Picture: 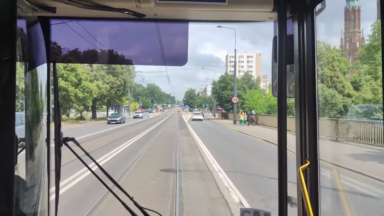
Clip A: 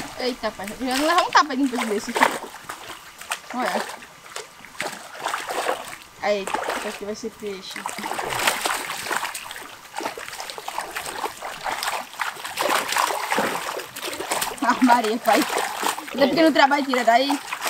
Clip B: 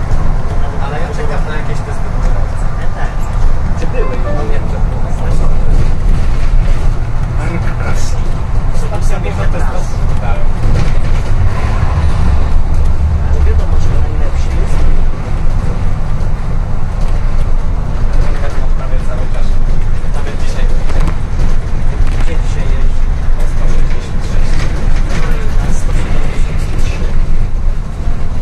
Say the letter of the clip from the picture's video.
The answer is B